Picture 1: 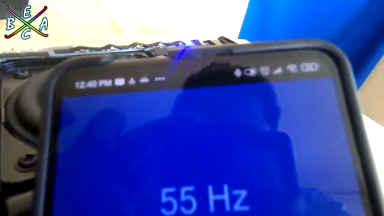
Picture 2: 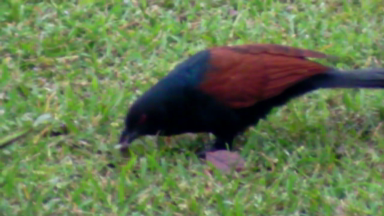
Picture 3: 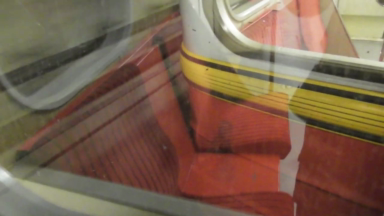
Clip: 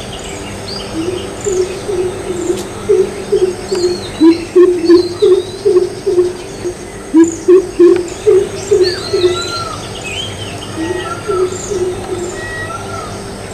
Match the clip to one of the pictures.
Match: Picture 2